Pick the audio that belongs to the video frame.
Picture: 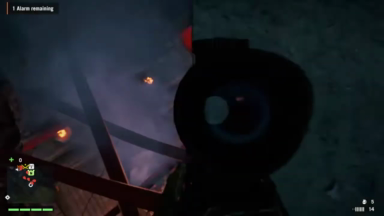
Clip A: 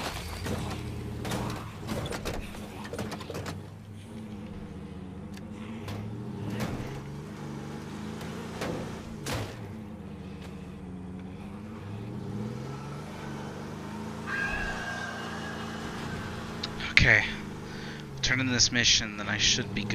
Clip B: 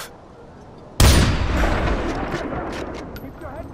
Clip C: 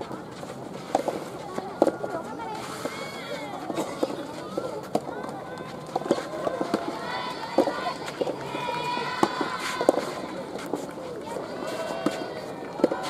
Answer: B